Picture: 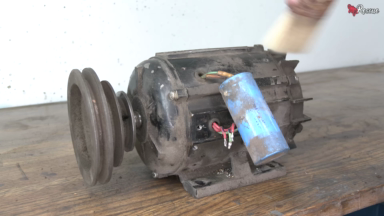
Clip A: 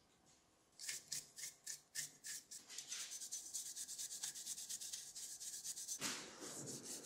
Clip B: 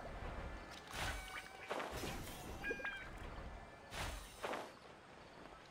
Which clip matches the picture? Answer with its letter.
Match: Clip A